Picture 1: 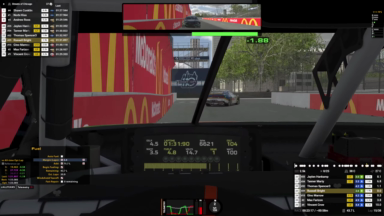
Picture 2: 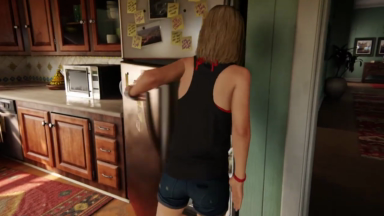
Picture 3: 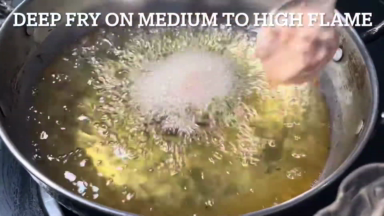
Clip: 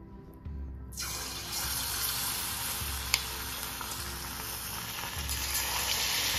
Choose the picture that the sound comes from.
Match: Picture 3